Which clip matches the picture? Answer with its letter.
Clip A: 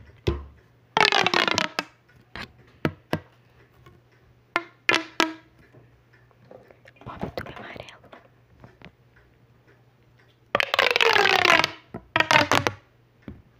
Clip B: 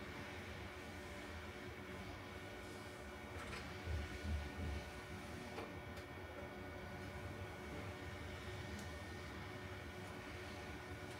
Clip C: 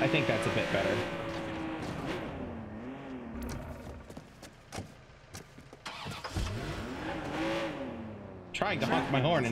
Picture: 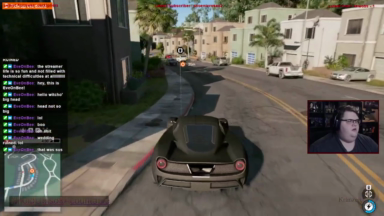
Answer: C